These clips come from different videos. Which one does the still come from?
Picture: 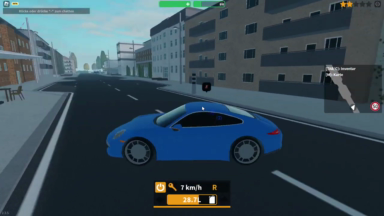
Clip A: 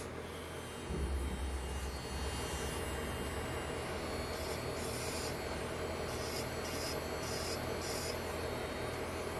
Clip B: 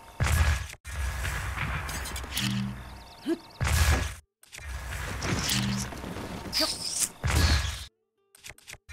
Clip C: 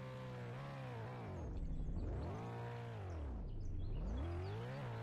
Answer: C